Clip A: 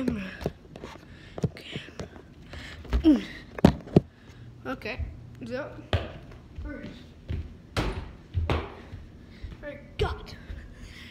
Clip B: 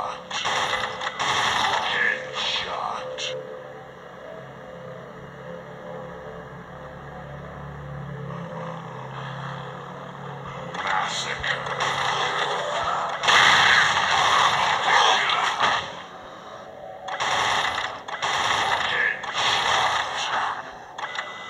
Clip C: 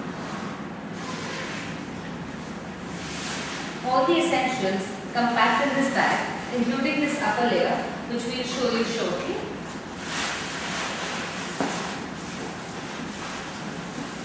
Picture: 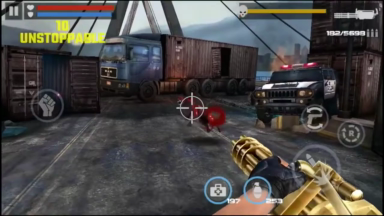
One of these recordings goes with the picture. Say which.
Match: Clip B